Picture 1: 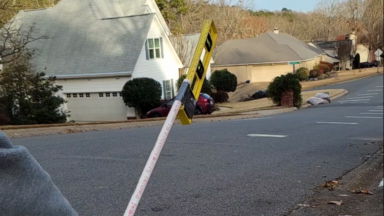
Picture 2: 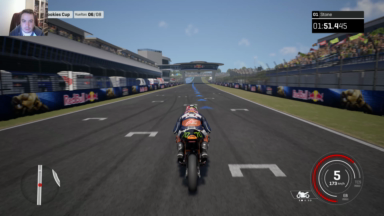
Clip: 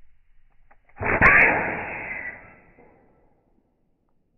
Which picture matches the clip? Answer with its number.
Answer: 1